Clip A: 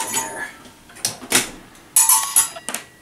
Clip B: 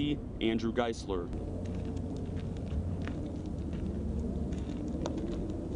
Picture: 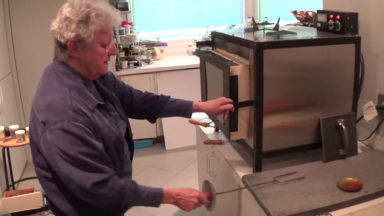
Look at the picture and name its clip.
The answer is A